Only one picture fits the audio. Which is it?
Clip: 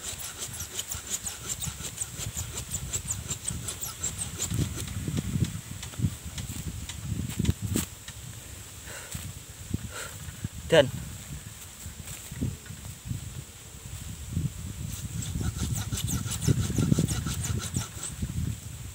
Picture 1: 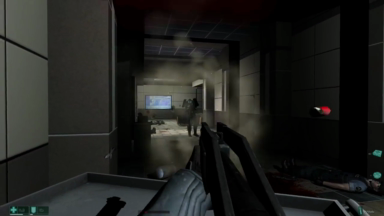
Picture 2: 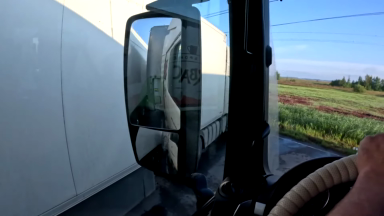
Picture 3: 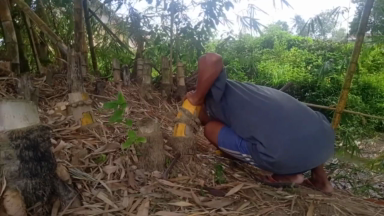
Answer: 3